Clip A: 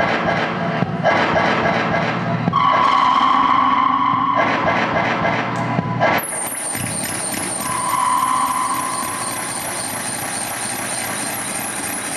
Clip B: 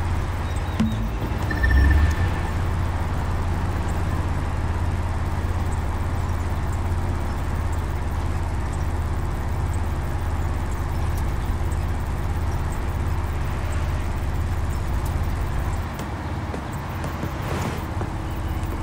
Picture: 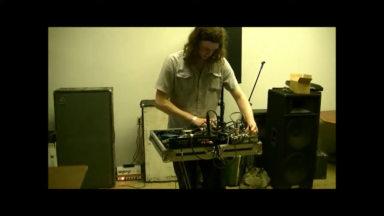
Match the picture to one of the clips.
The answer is A